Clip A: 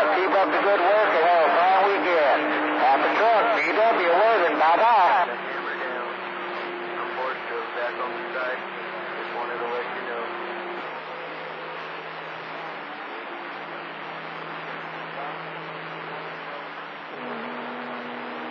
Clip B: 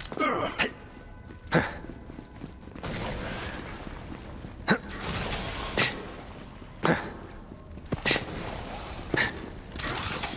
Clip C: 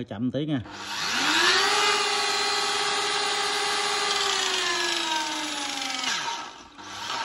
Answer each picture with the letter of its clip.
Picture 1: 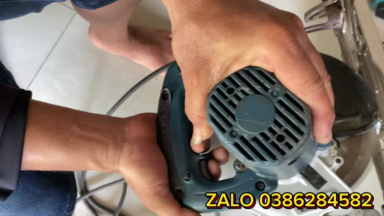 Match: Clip C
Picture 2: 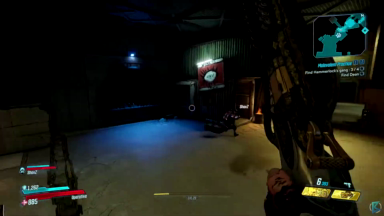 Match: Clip B